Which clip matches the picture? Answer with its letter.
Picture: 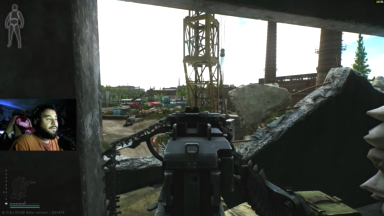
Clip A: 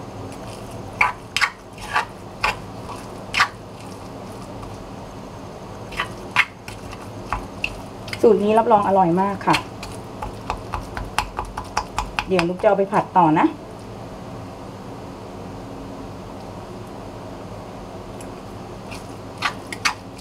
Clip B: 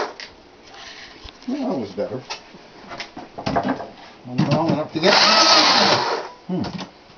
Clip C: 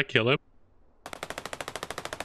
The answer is C